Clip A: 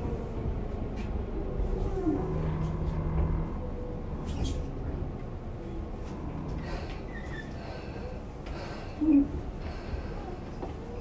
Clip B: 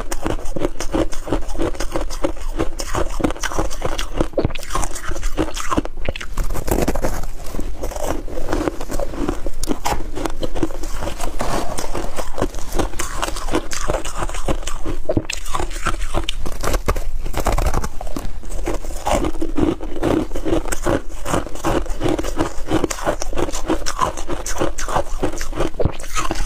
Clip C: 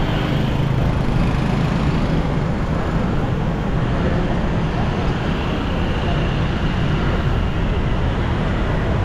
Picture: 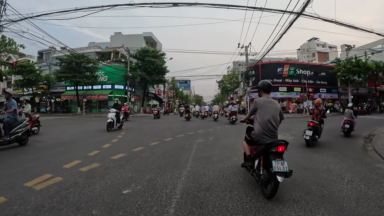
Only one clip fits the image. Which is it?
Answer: C